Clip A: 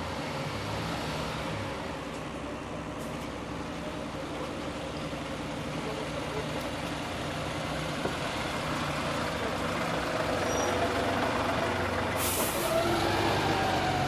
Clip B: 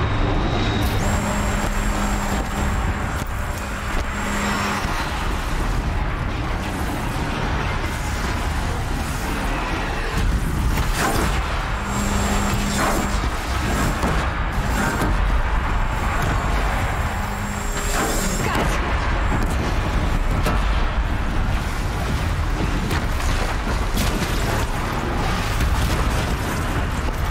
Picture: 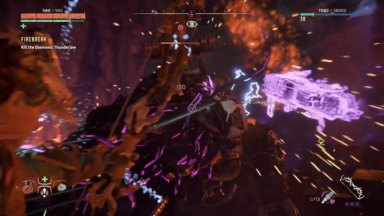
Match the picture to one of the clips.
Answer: B